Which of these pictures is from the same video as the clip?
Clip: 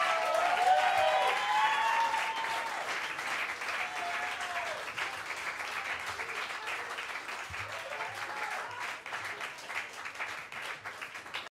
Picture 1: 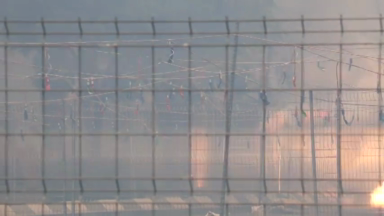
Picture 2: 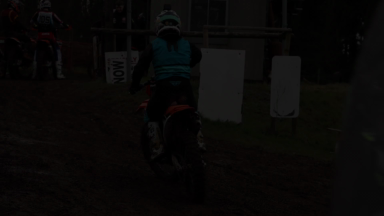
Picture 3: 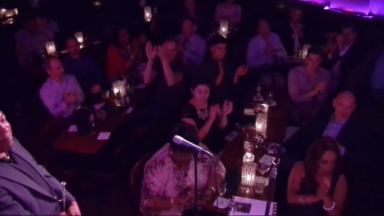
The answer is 3